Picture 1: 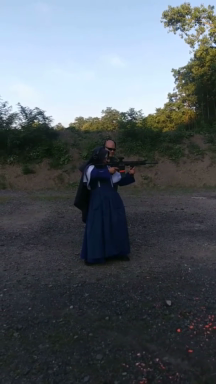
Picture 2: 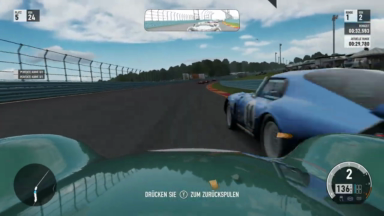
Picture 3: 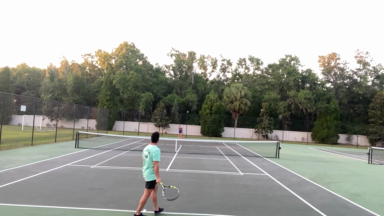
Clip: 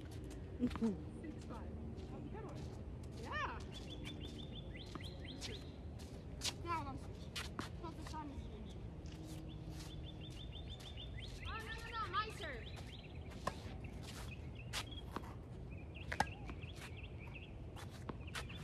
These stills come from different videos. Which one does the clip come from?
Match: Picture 3